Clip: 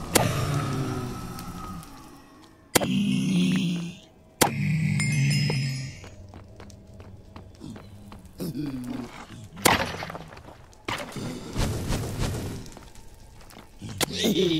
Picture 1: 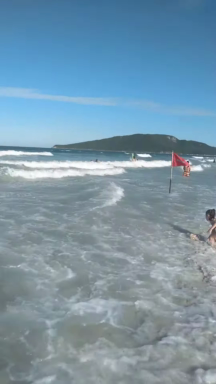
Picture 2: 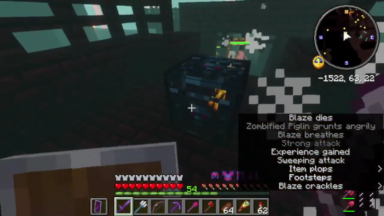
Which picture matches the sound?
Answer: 2